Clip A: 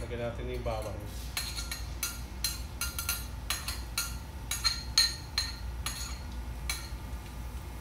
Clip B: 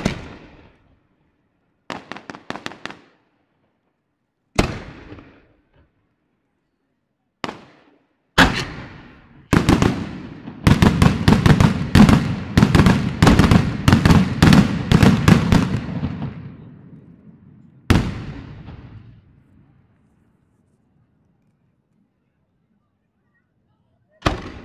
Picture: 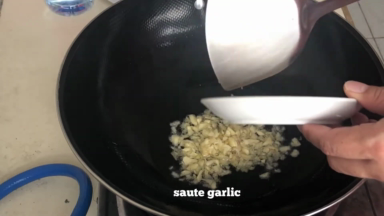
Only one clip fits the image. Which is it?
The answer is A